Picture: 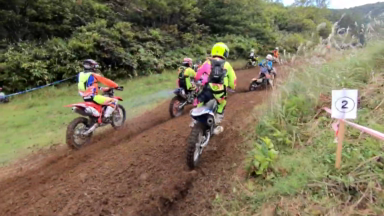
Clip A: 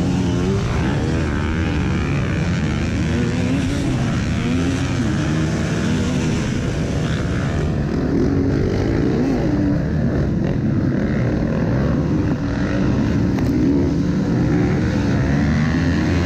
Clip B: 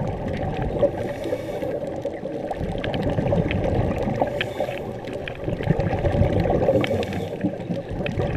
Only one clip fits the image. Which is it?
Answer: A